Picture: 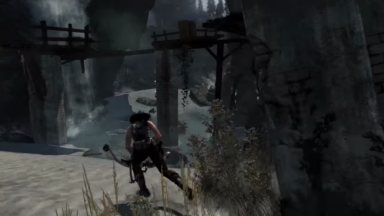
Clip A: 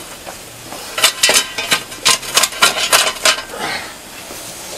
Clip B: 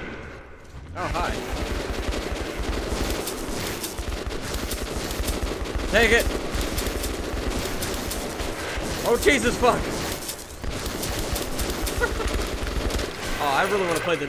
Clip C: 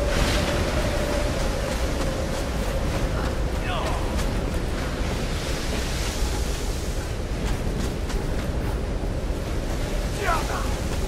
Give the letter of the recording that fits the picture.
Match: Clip C